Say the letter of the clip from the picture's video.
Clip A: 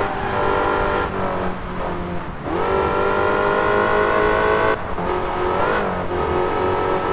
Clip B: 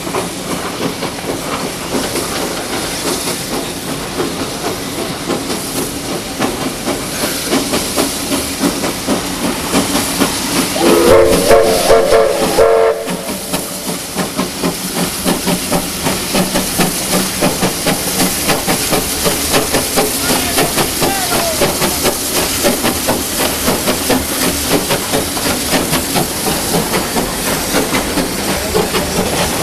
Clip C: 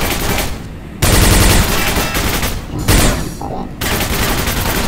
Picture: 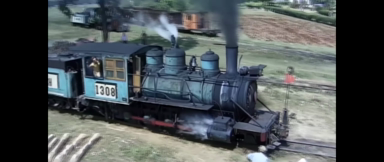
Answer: B